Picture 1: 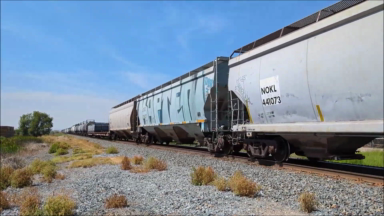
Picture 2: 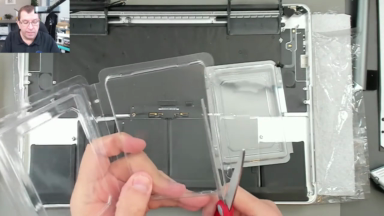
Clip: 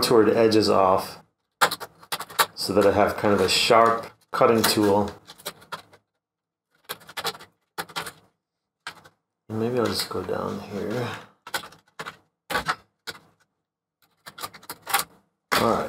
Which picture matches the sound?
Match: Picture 2